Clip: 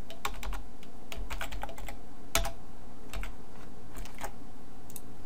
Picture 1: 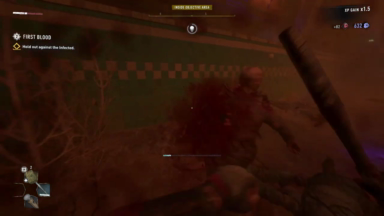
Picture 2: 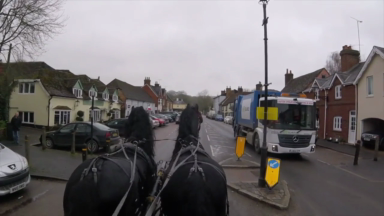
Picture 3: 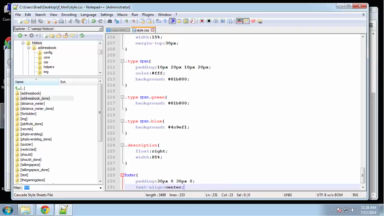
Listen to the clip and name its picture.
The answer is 3